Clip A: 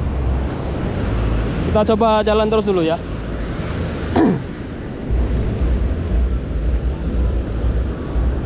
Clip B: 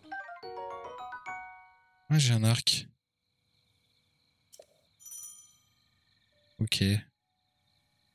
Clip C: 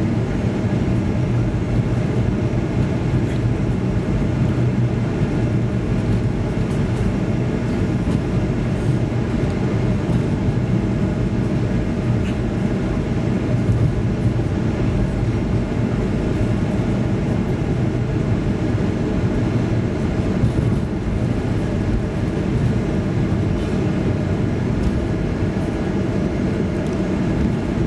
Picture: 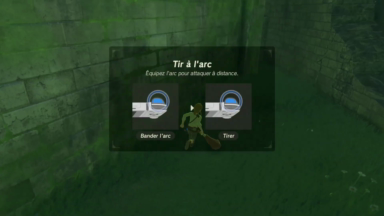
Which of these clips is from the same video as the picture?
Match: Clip B